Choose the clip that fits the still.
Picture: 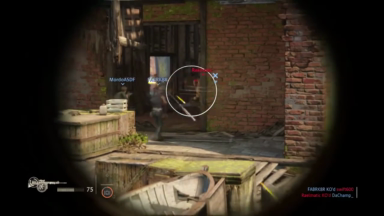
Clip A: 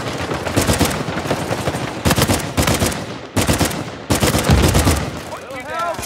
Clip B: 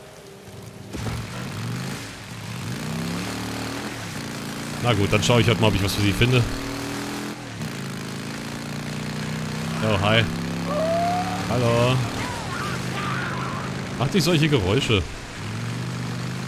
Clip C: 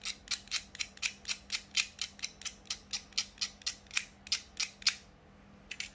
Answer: A